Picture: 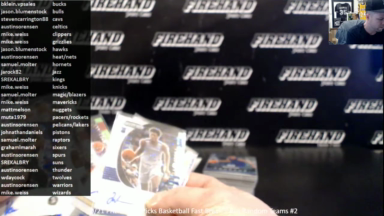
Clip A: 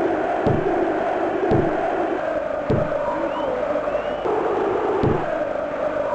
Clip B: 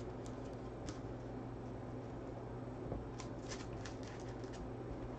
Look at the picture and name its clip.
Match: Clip B